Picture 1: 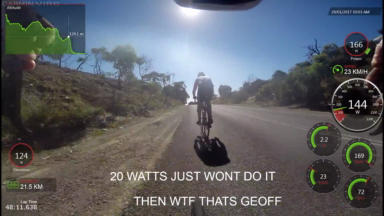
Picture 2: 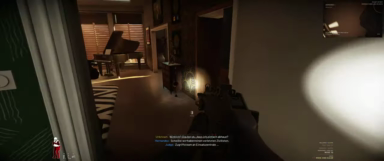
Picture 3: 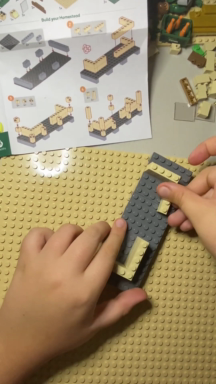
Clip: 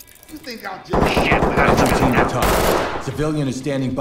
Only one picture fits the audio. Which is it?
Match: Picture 2